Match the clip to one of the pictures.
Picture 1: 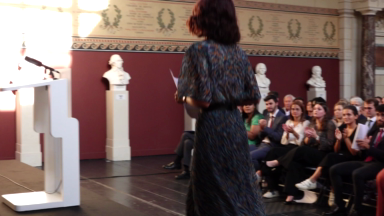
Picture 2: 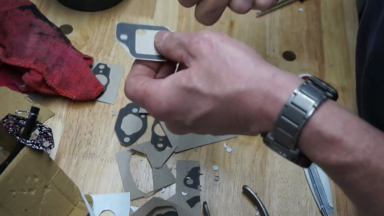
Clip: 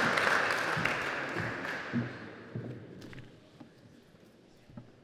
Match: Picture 1